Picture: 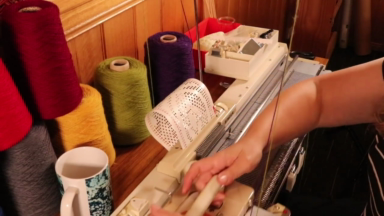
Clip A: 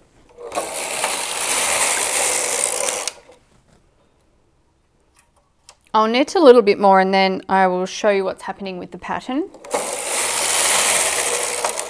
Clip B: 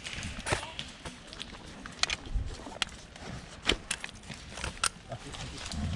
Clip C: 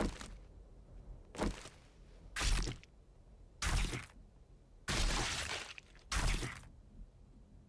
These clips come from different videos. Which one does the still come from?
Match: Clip A